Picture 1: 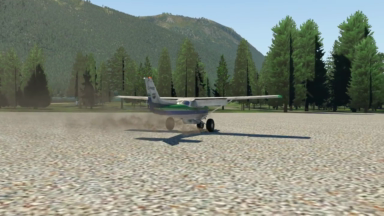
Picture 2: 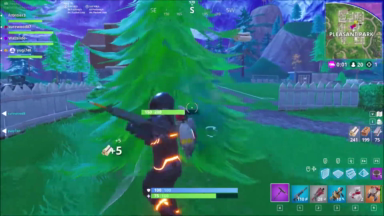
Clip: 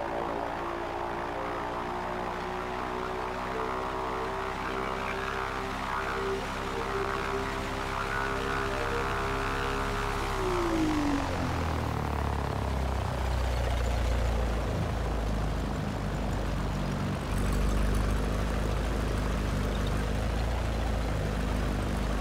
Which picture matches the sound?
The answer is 1